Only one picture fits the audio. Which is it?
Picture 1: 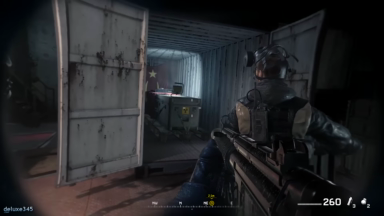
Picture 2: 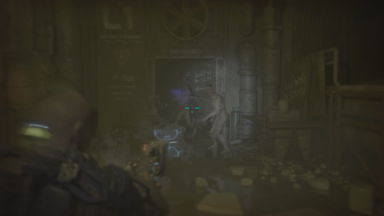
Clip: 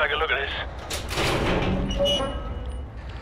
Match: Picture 1